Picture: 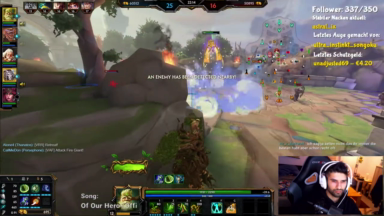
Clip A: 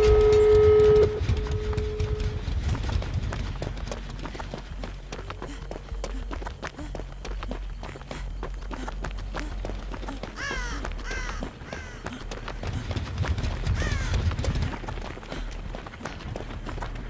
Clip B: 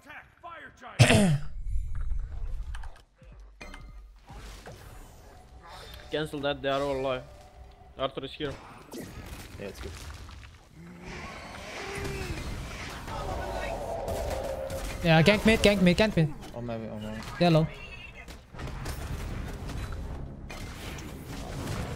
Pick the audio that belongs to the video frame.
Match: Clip B